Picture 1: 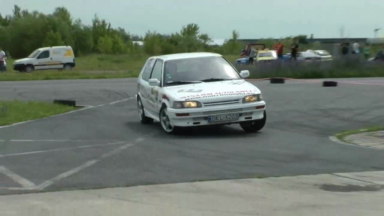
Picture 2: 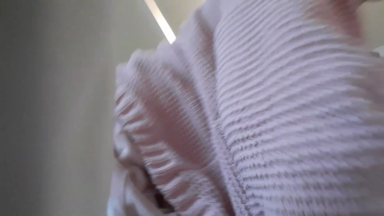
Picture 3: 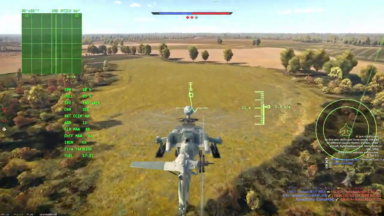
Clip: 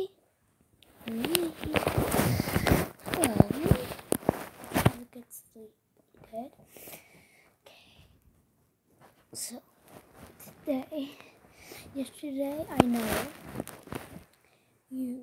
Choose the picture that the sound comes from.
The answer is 2